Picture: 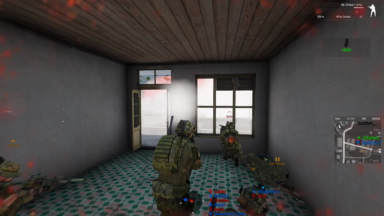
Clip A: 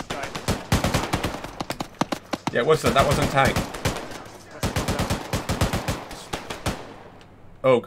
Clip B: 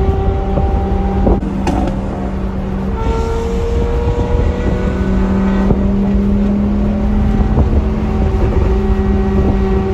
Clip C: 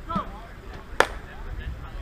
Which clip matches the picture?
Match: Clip A